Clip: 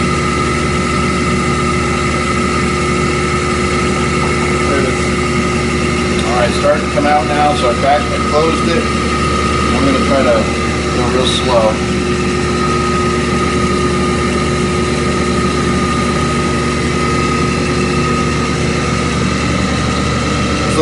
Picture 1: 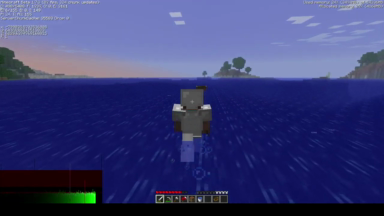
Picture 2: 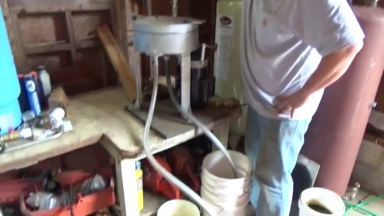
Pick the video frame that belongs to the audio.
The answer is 2